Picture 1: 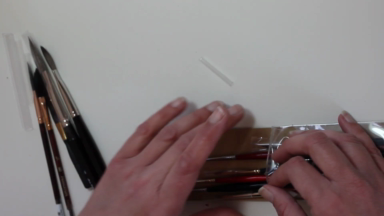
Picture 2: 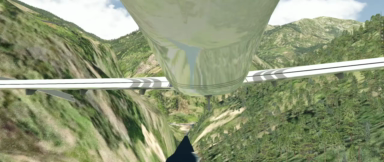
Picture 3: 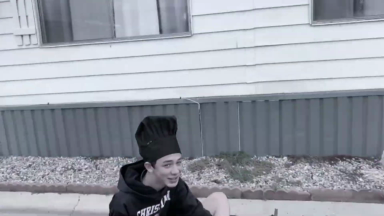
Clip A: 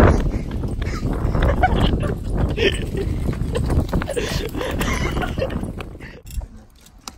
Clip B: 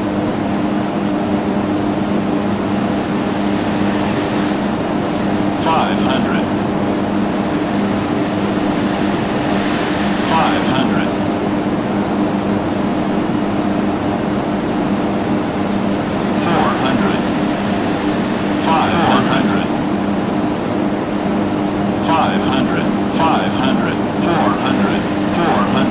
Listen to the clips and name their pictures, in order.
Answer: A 3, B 2